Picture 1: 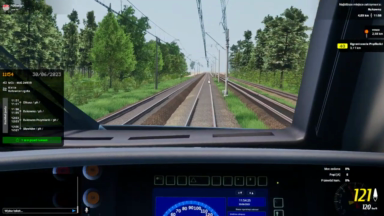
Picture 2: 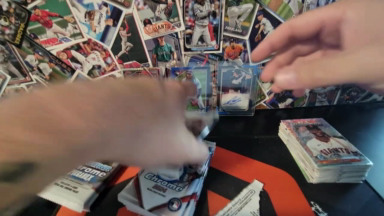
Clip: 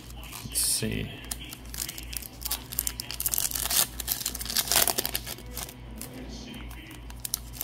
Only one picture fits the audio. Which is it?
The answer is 2